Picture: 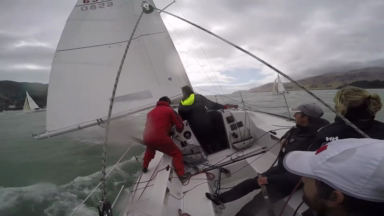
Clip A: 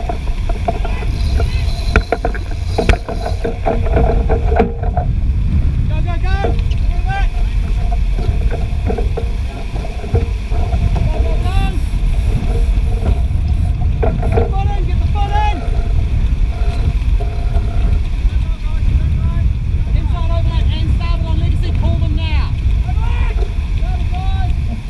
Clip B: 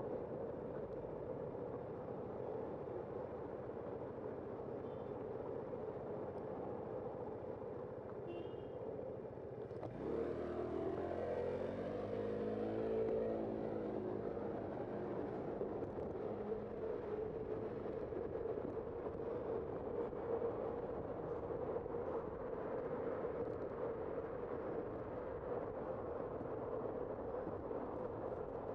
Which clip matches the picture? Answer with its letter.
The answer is A